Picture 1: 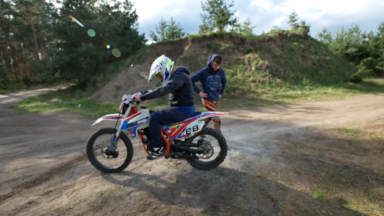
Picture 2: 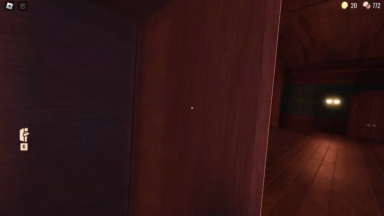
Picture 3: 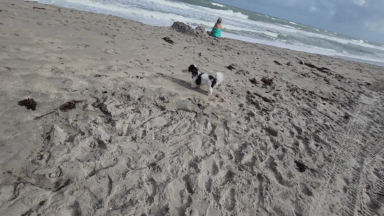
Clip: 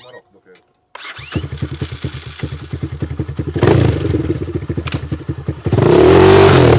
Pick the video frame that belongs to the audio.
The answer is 1